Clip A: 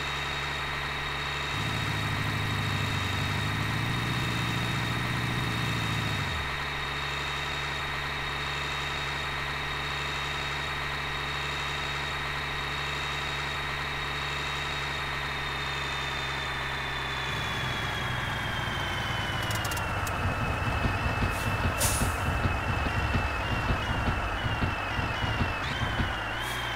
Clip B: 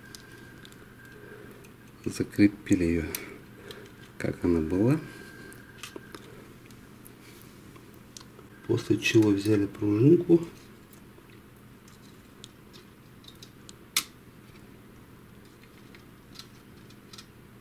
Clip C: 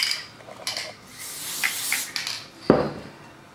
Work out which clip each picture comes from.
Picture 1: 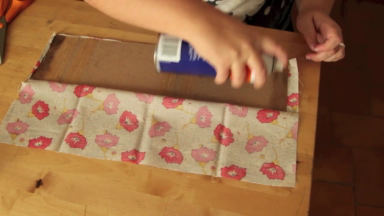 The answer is C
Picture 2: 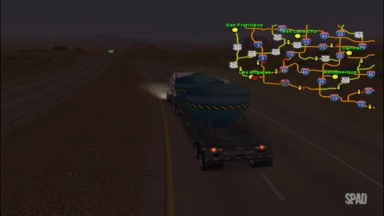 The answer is A